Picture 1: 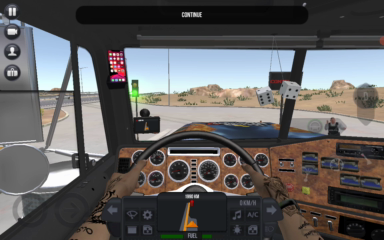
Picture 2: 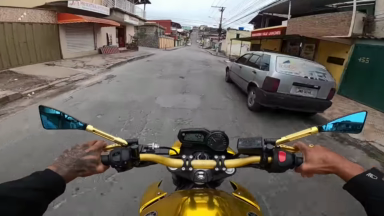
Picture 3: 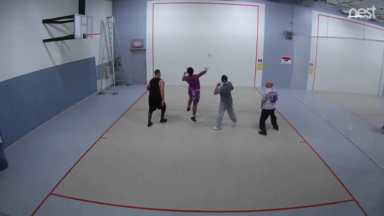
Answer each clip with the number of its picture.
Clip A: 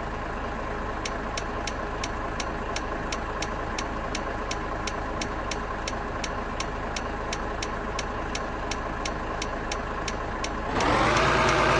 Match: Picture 1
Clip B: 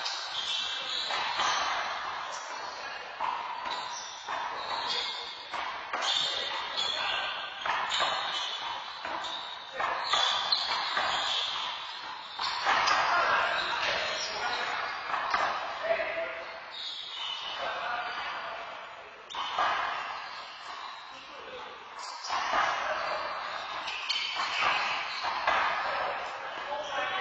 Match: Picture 3